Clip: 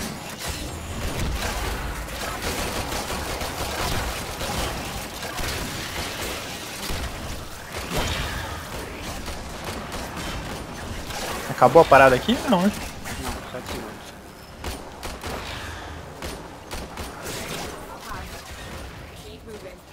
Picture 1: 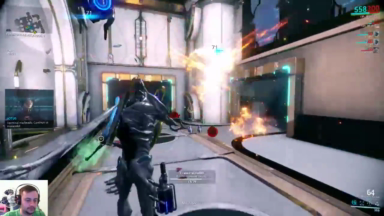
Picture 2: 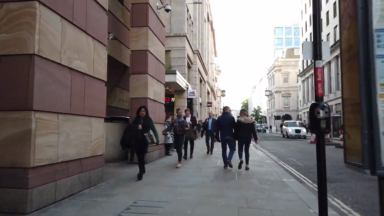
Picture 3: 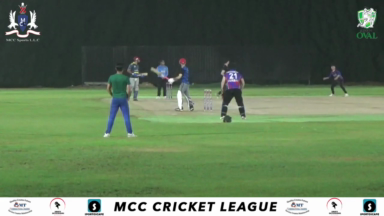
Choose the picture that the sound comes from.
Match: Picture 1